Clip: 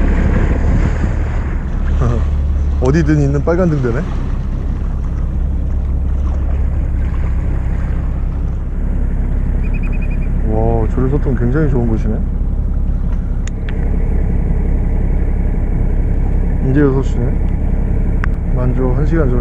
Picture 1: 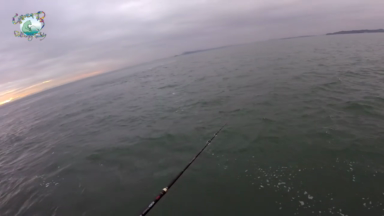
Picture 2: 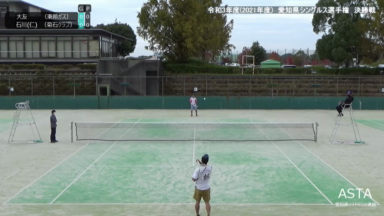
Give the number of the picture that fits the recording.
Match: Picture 1